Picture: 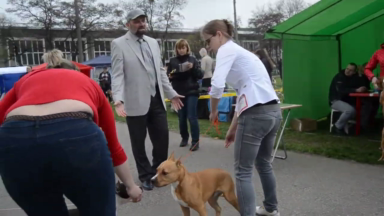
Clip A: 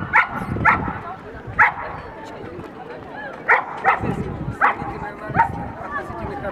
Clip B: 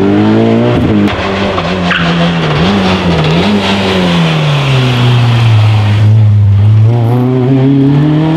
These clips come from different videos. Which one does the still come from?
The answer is A